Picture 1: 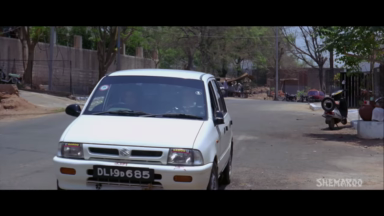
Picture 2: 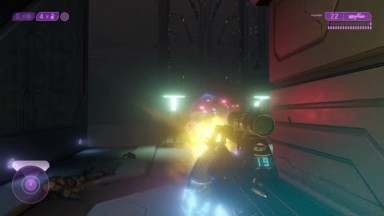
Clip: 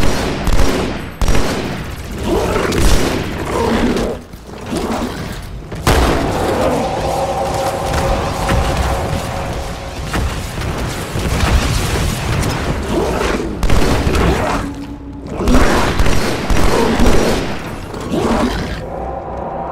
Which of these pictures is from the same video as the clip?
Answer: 2